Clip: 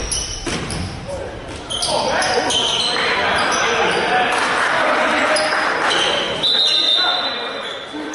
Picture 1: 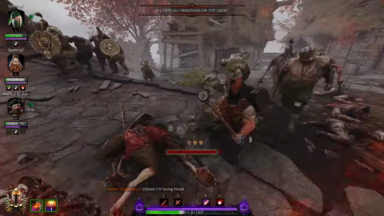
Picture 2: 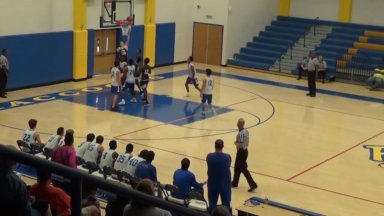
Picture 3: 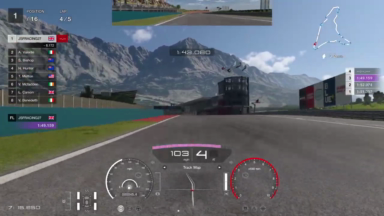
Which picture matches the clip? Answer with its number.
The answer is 2